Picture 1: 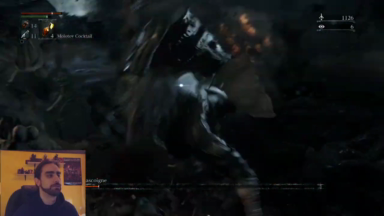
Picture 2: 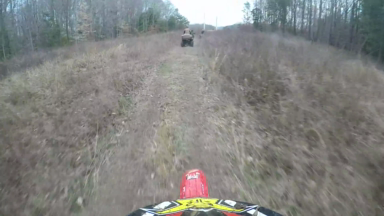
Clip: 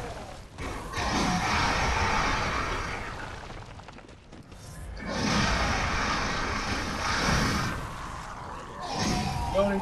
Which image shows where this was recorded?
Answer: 1